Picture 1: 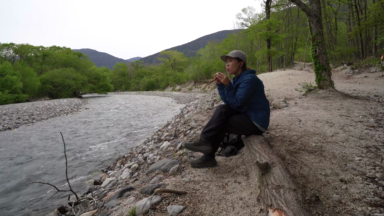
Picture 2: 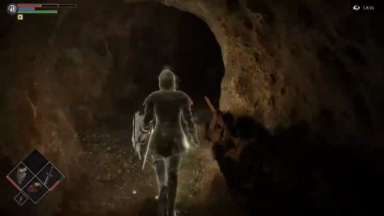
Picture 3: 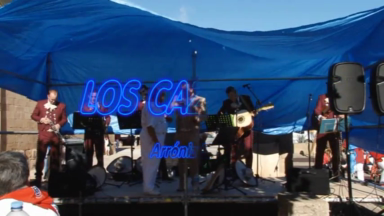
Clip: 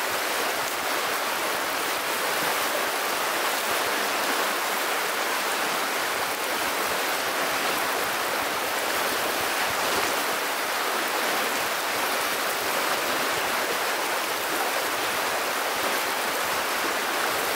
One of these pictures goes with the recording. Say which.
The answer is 1